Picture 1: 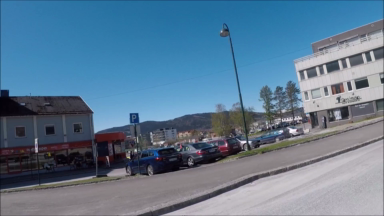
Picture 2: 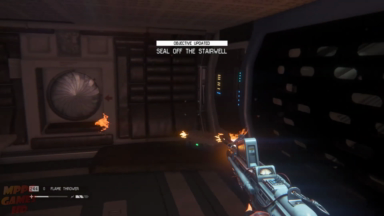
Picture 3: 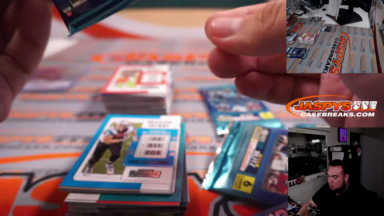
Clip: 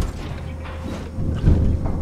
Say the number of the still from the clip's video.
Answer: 2